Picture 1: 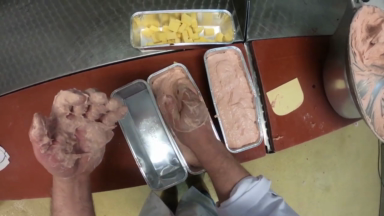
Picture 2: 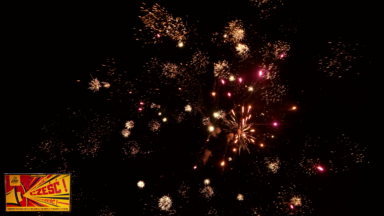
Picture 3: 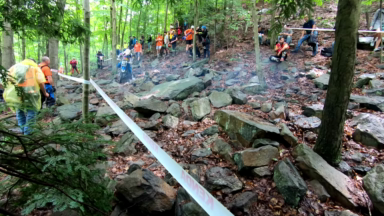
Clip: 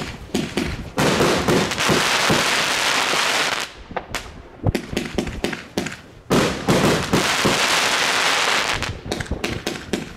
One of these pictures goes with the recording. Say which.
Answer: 2